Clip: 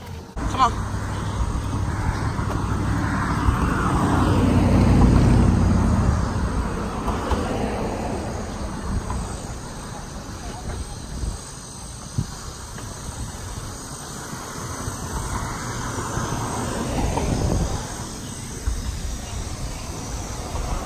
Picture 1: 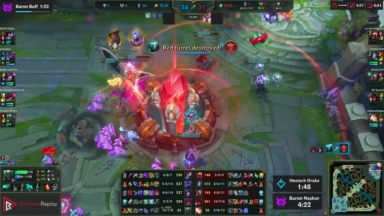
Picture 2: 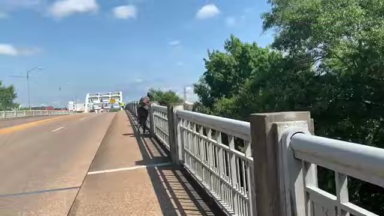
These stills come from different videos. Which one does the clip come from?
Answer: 2